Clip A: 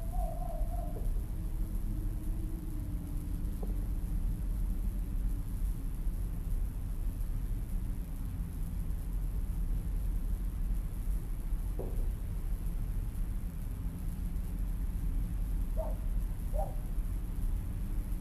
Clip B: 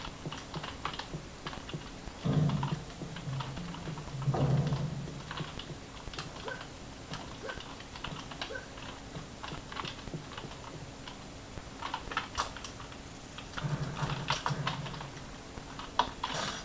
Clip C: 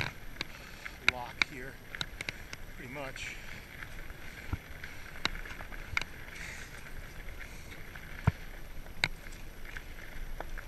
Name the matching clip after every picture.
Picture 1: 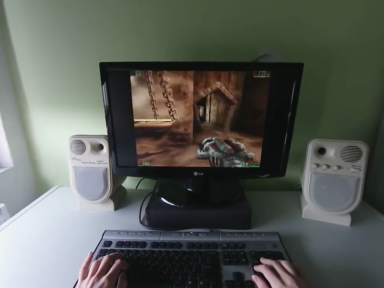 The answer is B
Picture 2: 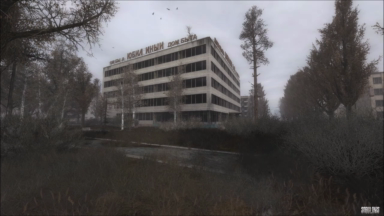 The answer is A